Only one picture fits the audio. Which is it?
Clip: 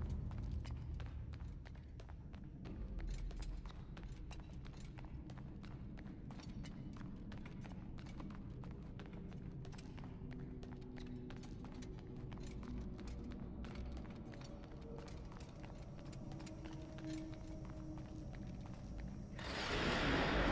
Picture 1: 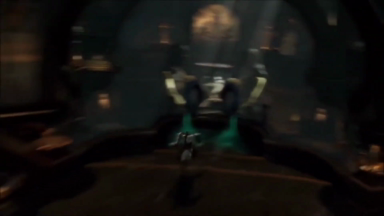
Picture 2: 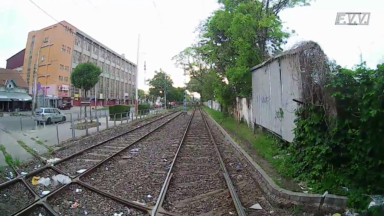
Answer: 1